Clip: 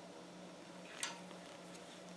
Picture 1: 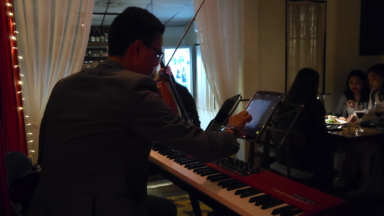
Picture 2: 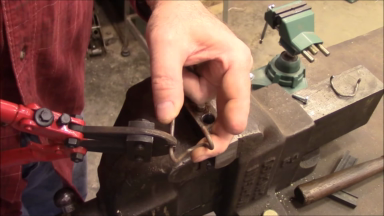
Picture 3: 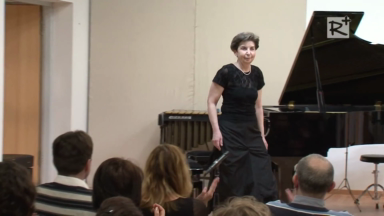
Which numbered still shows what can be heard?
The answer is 2